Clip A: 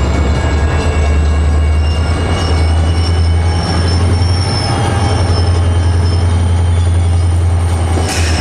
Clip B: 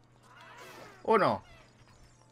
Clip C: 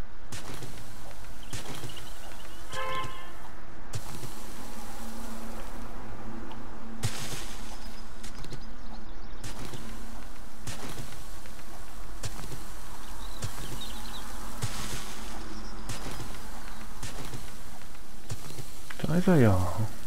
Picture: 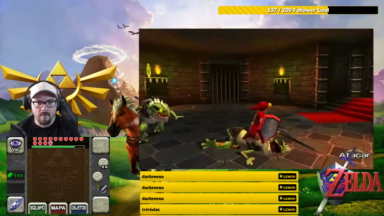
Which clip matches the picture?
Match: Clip B